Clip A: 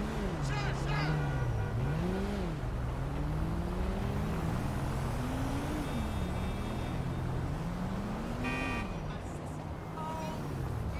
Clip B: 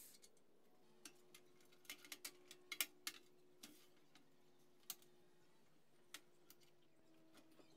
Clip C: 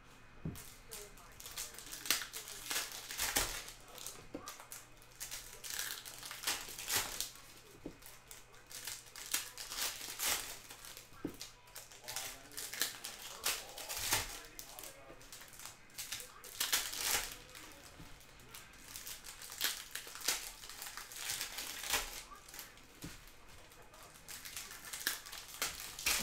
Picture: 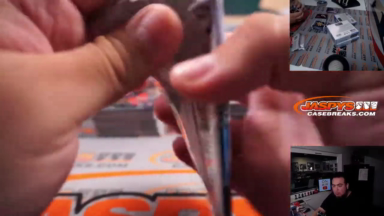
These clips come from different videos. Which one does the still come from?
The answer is C